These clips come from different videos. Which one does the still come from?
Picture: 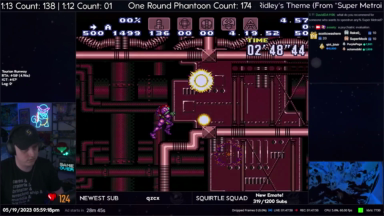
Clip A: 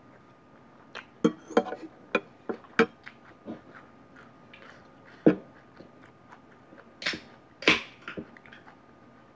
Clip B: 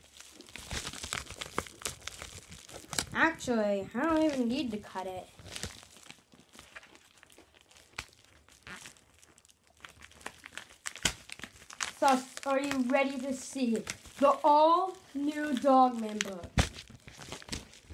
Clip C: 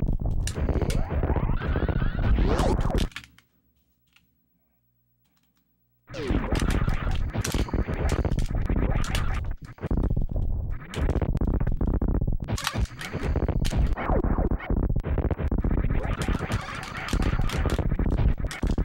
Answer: C